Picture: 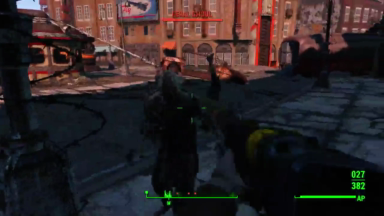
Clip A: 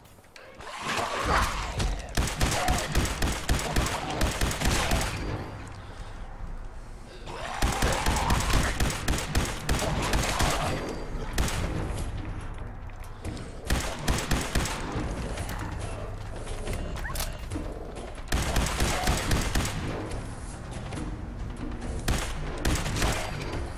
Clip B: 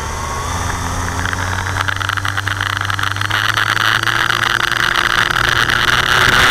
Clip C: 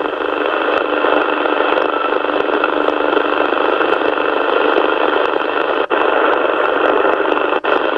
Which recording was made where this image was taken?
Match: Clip A